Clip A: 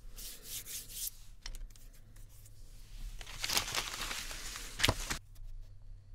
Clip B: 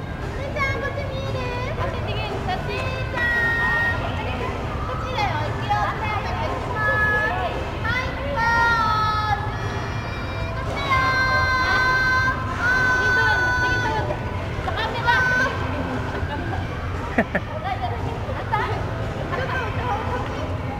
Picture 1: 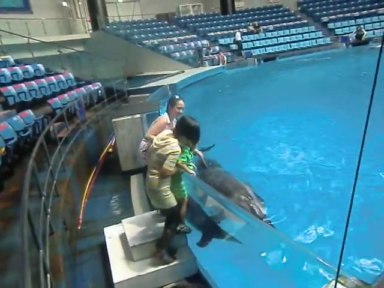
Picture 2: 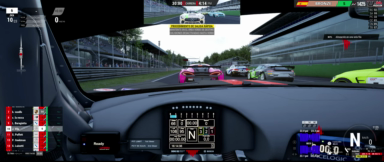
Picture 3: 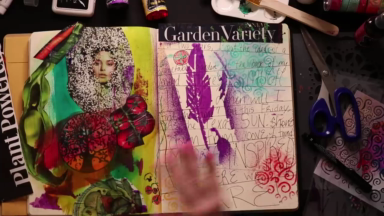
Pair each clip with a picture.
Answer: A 3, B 1